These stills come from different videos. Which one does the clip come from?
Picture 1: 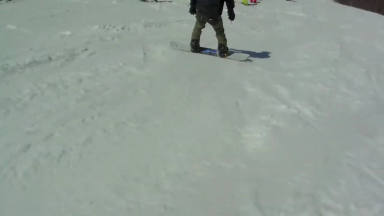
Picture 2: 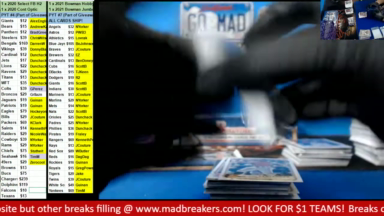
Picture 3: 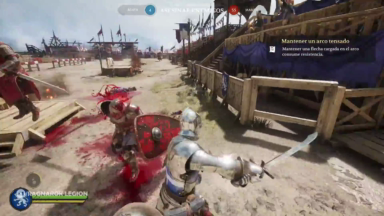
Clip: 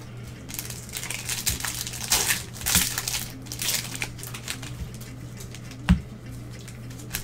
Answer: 2